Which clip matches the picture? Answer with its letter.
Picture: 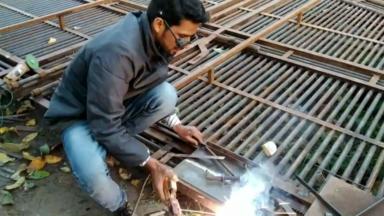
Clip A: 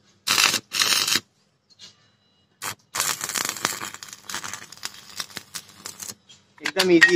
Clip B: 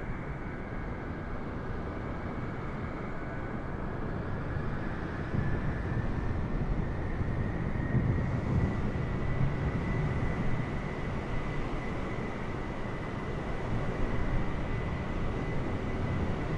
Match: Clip A